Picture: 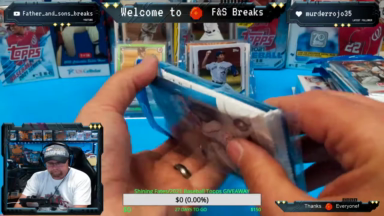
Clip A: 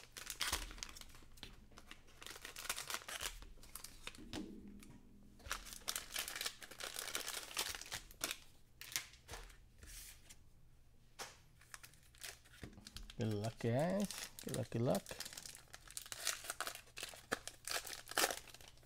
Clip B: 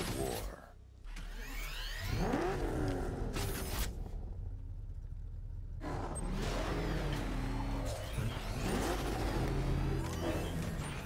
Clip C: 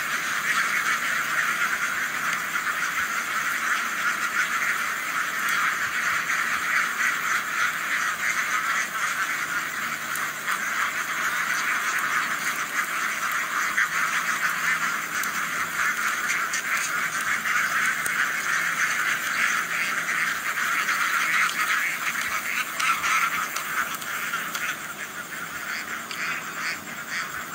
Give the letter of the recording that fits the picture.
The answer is A